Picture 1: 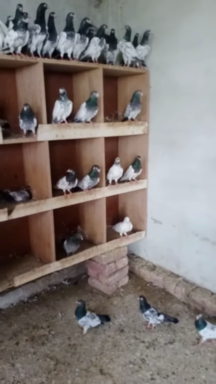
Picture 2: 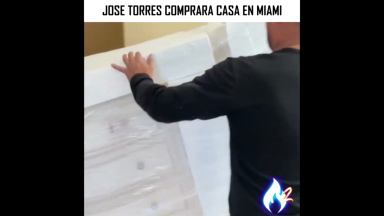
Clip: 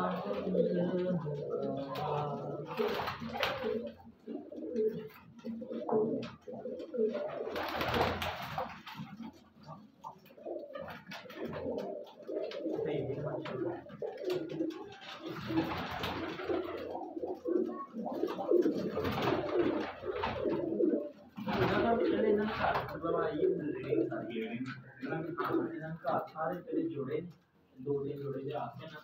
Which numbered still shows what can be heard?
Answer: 1